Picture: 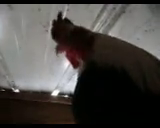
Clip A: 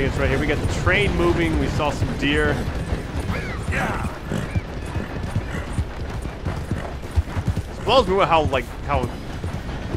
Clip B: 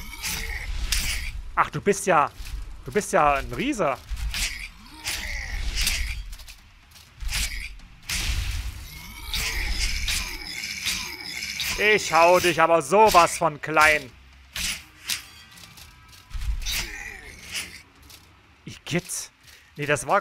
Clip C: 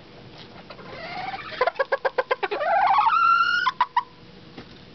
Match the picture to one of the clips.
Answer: C